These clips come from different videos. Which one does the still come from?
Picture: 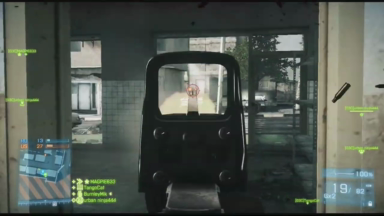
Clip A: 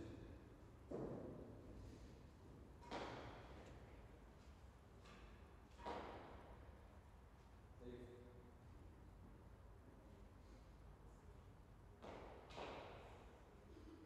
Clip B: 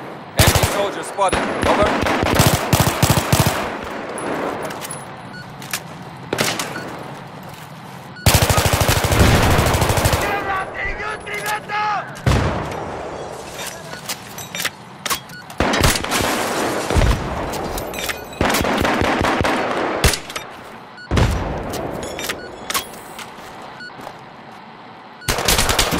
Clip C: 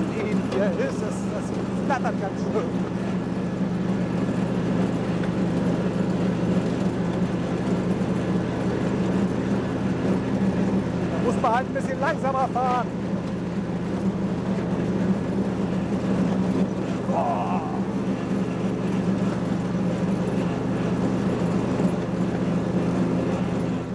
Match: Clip B